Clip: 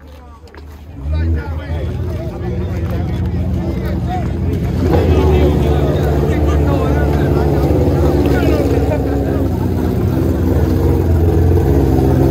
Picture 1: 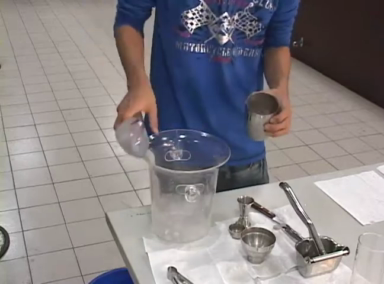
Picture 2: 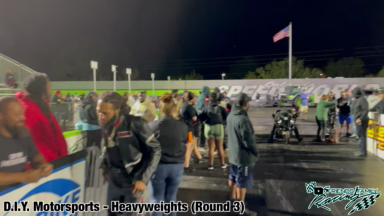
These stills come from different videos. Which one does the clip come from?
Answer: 2